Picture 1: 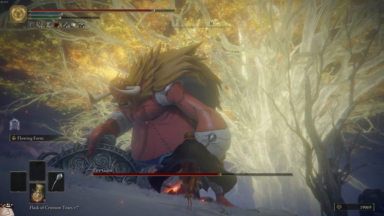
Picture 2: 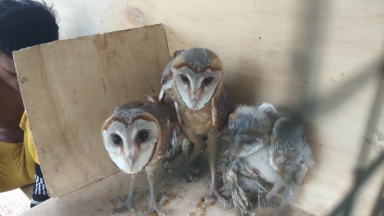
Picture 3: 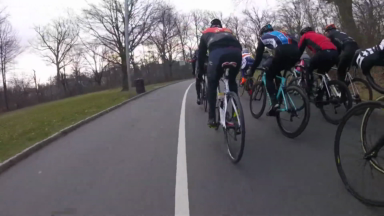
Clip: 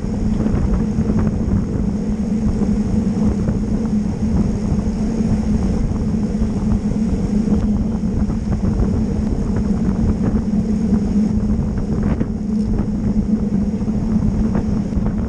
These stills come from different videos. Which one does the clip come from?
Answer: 3